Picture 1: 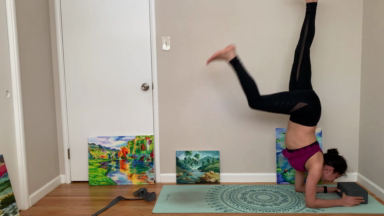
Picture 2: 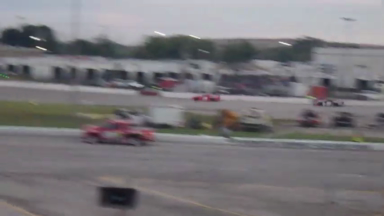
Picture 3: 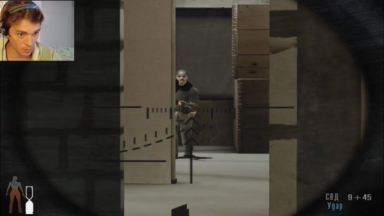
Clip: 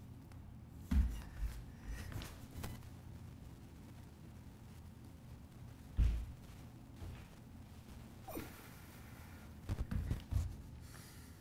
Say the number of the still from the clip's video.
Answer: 1